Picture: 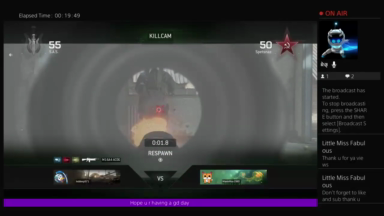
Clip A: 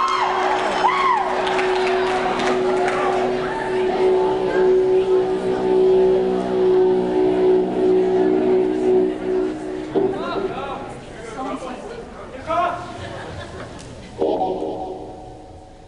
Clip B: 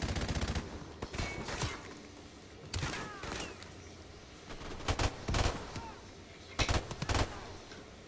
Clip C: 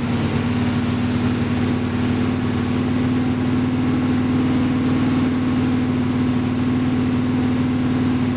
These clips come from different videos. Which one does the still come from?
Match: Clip B